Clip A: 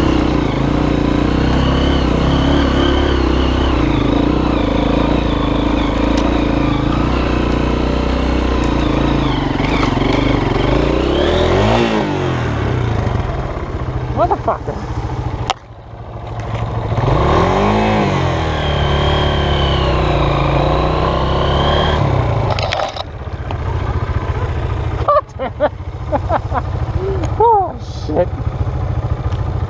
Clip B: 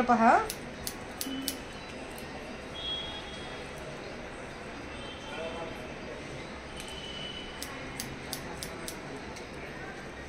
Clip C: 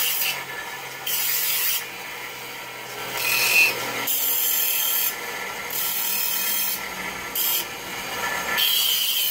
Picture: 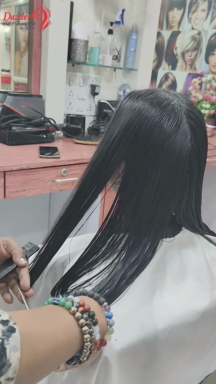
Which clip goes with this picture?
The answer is B